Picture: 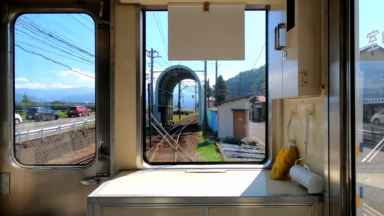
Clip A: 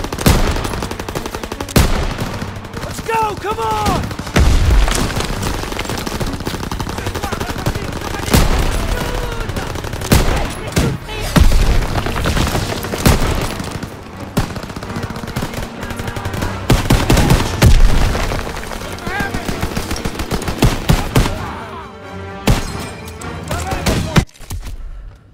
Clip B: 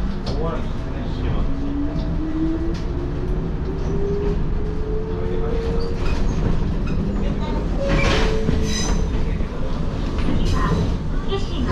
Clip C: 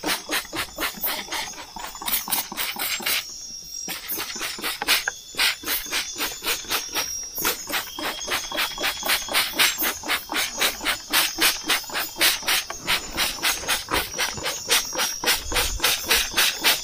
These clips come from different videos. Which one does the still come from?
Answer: B